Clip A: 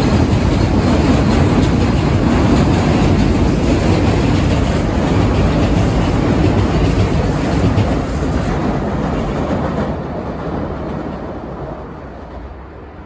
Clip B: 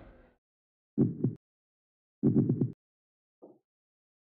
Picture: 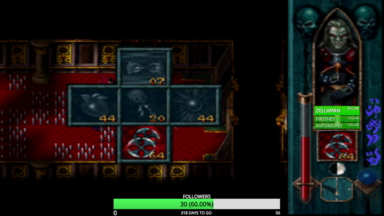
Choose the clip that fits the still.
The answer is B